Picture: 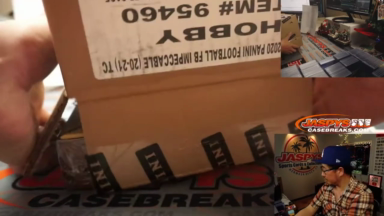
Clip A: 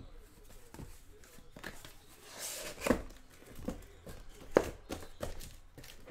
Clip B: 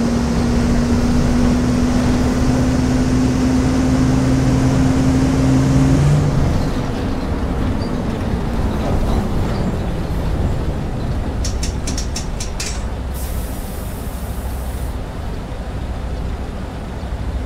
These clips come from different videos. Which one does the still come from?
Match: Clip A